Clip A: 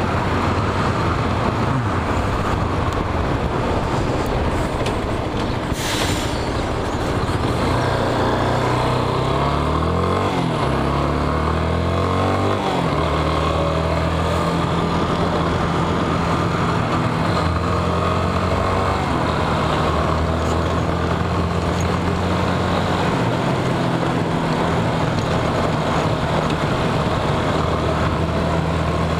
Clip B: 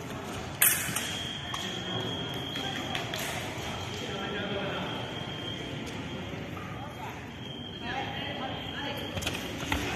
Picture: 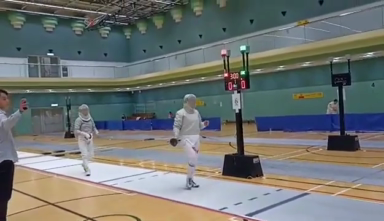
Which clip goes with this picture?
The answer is B